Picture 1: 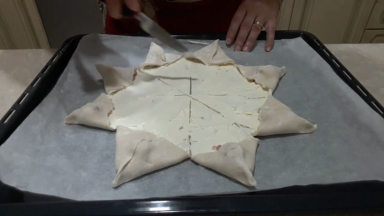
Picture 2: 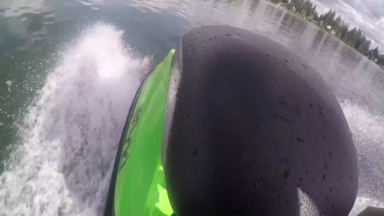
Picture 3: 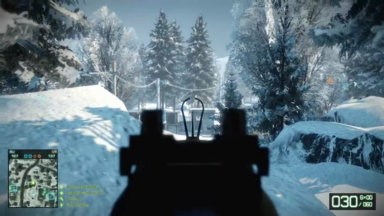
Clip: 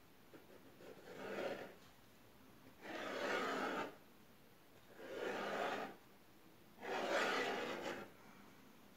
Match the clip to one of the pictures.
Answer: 1